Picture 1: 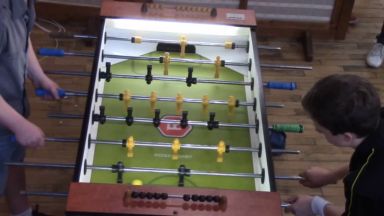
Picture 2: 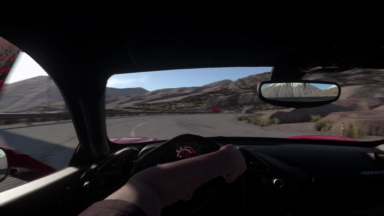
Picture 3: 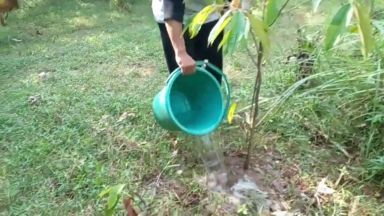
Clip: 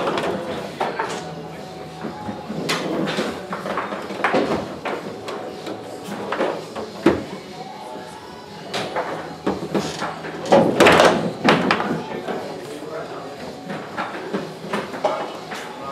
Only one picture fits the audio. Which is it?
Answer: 1